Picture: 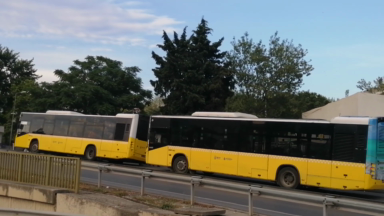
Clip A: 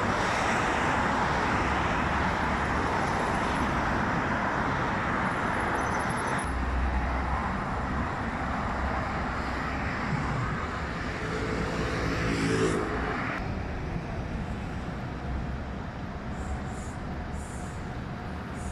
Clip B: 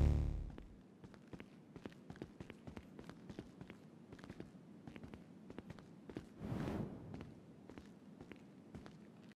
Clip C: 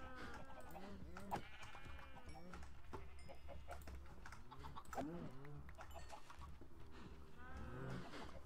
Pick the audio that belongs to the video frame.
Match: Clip A